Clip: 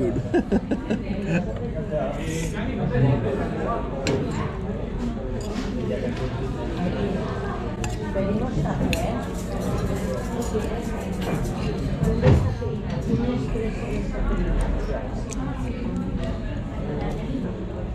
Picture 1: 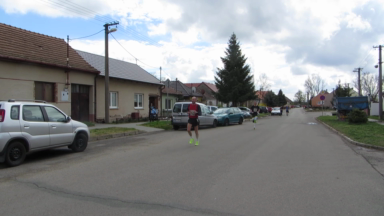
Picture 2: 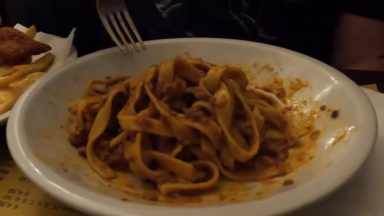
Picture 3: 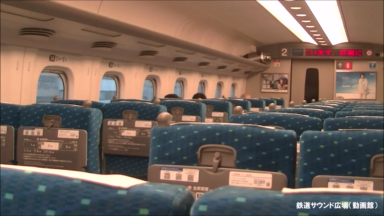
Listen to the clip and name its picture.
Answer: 2